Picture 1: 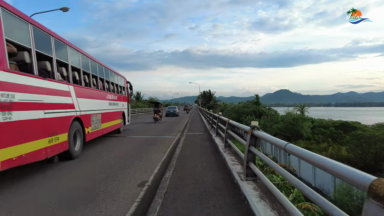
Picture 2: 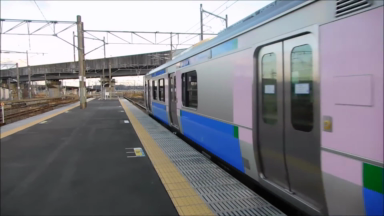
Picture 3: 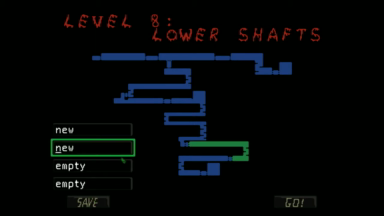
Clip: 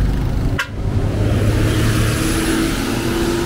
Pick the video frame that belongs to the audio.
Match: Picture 1